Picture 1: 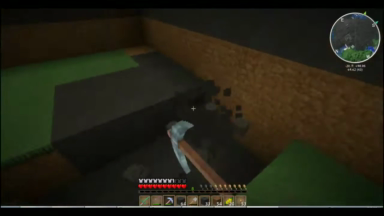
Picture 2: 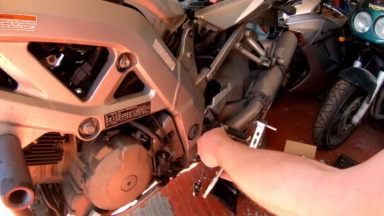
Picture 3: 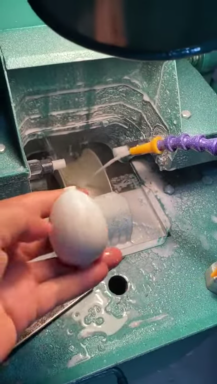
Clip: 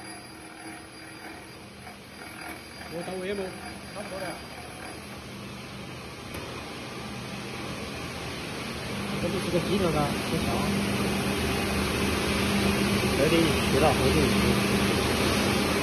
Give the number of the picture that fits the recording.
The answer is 3